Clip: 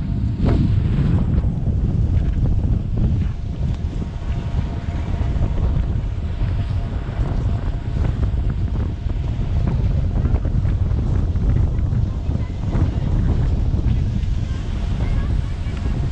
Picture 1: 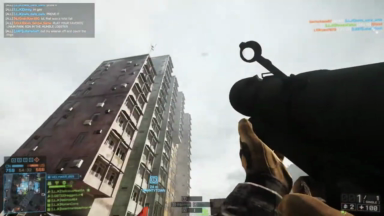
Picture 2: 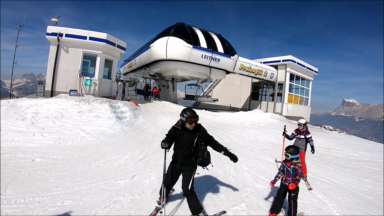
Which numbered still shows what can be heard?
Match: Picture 2